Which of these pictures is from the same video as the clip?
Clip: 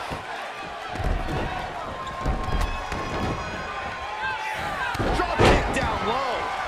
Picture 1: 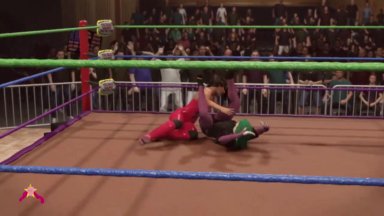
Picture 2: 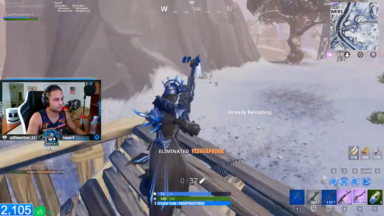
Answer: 1